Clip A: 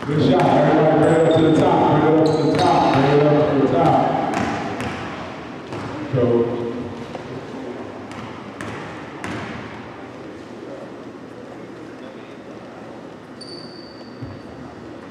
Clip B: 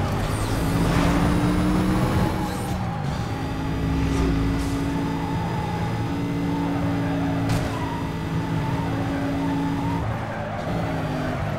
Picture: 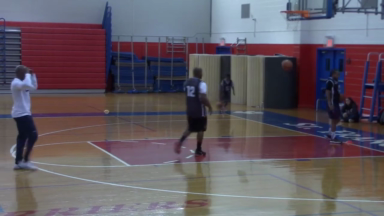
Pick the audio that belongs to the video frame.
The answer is A